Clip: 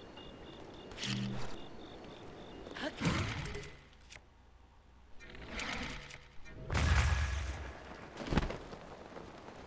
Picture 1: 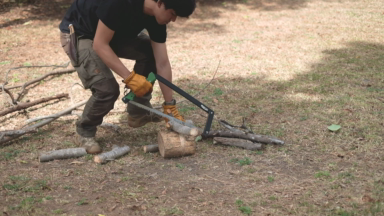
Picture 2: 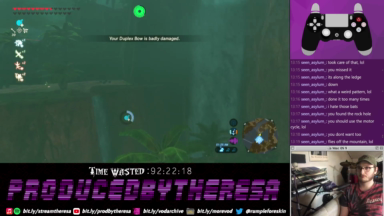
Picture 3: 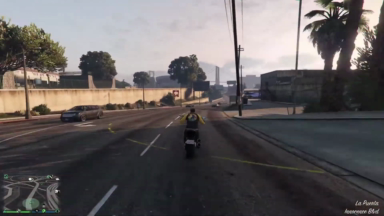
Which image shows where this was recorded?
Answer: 2